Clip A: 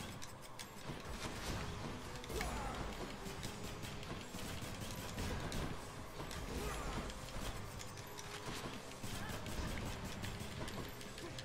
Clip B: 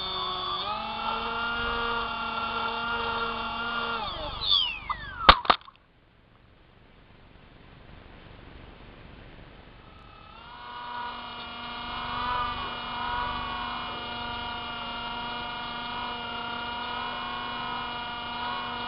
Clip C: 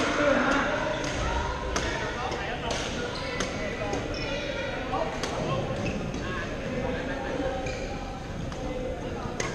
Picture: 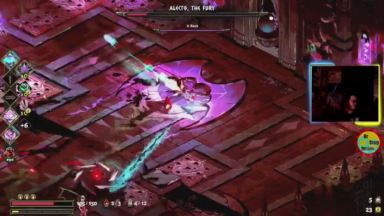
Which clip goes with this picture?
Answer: A